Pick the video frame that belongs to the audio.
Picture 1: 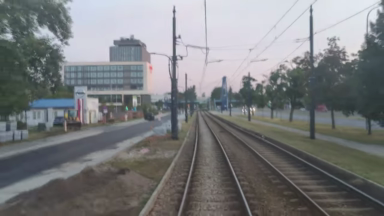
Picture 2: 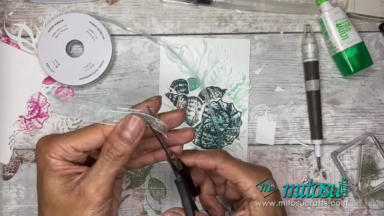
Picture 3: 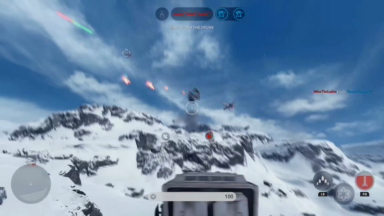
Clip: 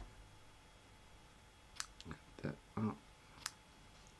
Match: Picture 2